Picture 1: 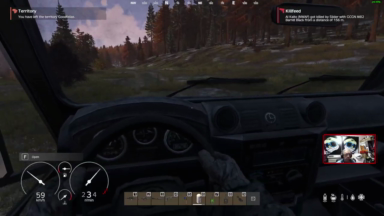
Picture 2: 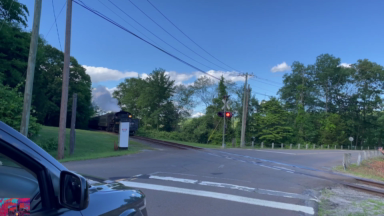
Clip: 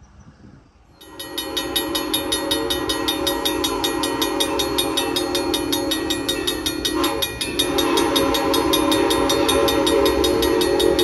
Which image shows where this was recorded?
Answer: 2